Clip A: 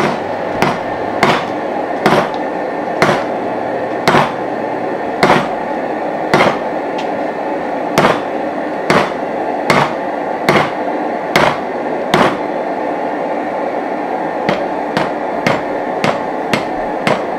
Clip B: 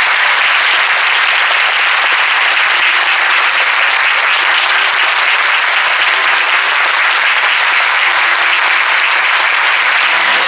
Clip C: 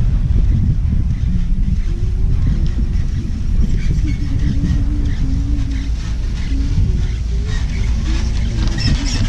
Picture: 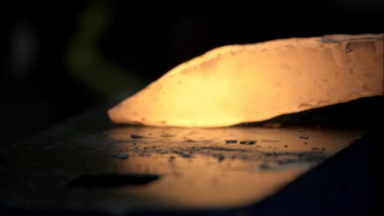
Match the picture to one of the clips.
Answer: A